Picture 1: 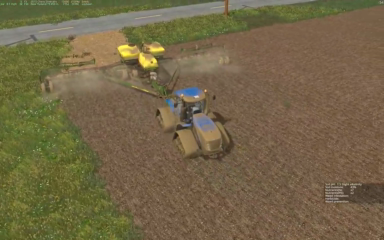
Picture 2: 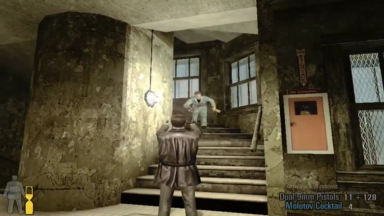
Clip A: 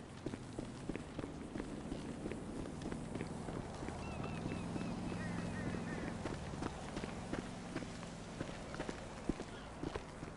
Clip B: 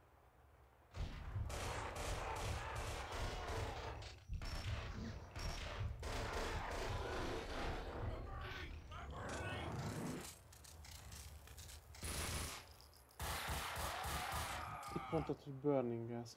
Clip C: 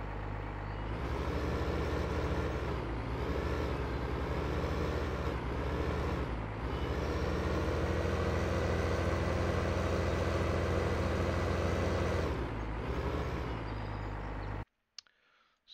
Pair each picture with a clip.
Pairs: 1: C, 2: B